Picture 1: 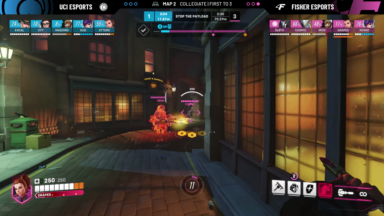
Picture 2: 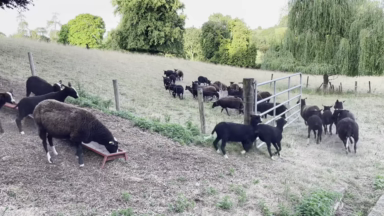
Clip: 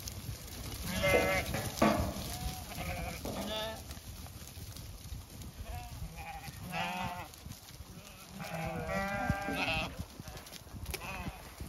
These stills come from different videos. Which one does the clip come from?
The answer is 2